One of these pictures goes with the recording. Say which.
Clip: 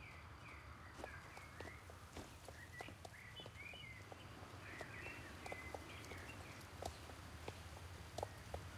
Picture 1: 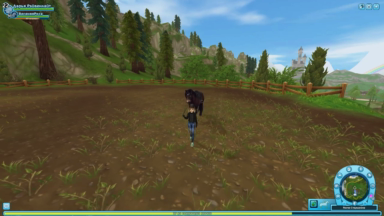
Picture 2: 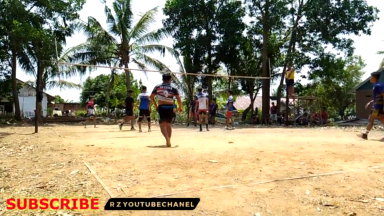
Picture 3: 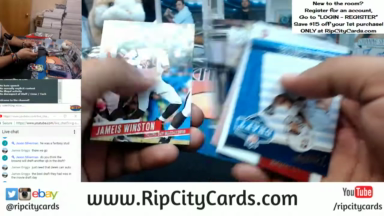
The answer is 1